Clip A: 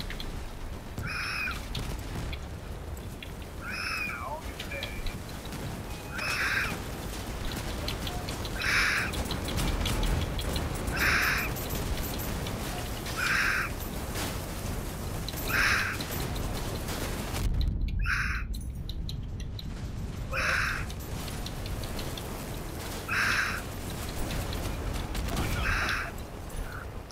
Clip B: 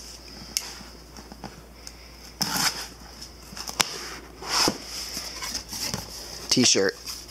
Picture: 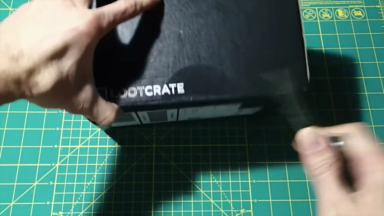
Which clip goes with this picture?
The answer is B